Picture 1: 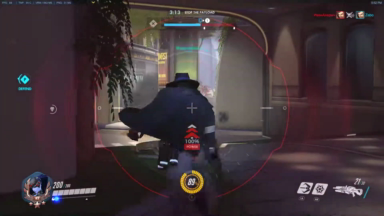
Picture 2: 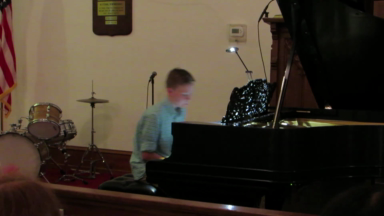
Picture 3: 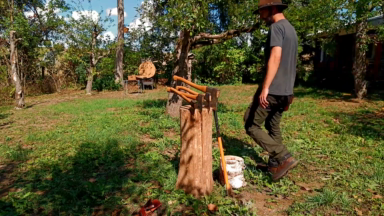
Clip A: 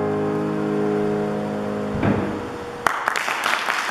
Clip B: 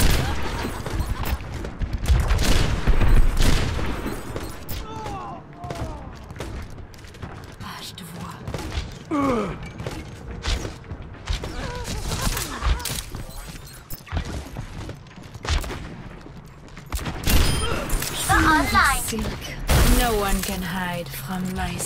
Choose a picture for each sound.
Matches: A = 2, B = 1